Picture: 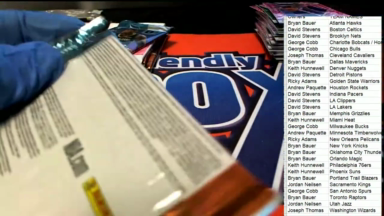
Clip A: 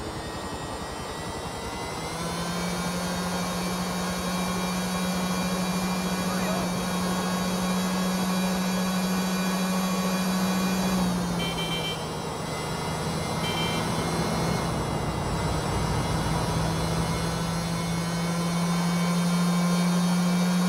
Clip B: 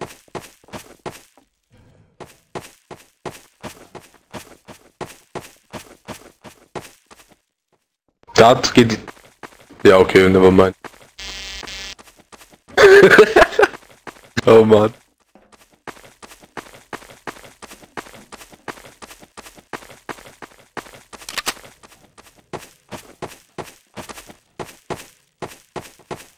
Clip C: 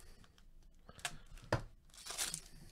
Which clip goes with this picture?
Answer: C